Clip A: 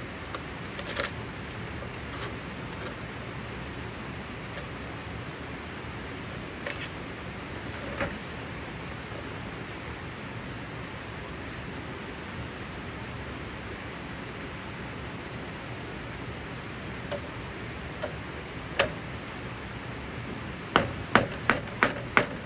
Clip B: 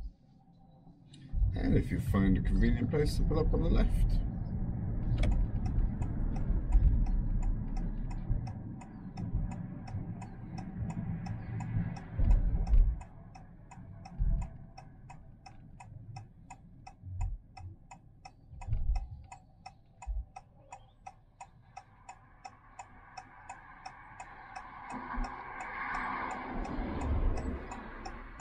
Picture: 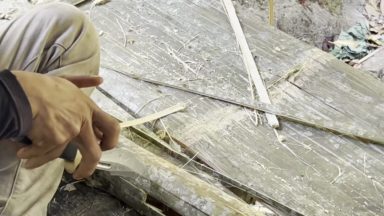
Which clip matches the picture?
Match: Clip A